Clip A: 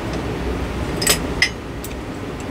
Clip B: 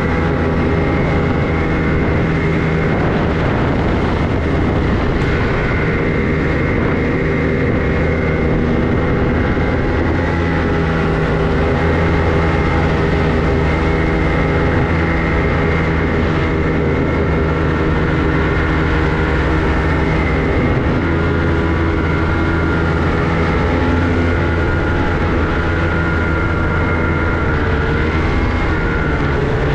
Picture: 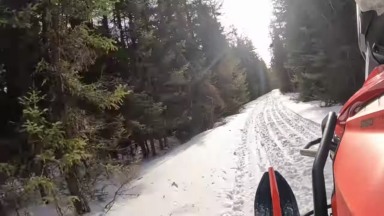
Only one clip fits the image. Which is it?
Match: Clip B